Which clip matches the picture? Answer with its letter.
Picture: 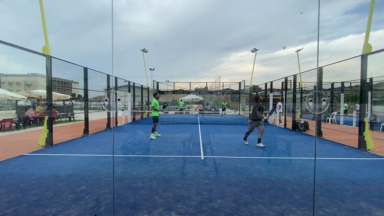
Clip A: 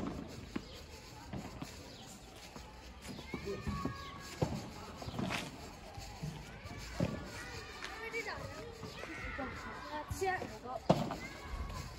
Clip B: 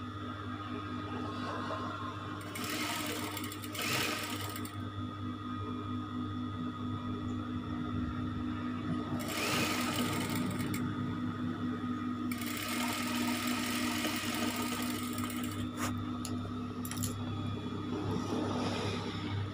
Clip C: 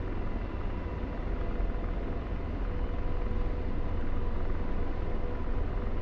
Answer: A